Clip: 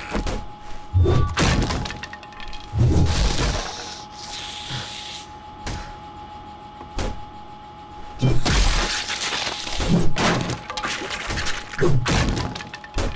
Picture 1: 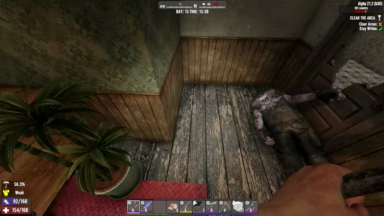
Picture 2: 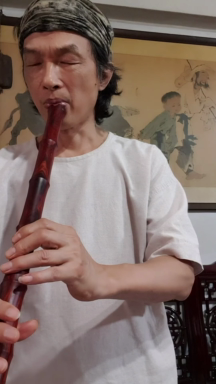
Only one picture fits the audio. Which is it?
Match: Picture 1